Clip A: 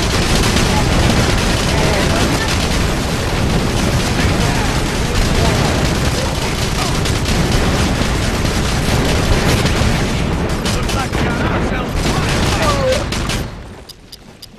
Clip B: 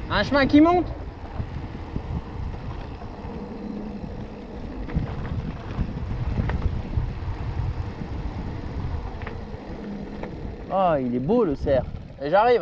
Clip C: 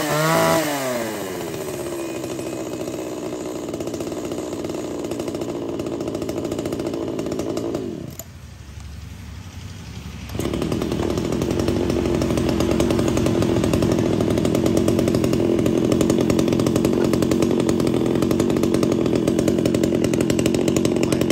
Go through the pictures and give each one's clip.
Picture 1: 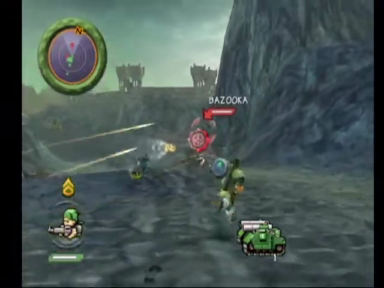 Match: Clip A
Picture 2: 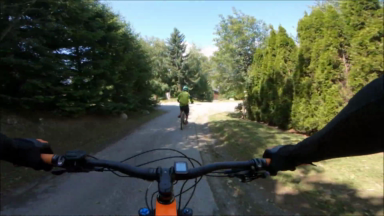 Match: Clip B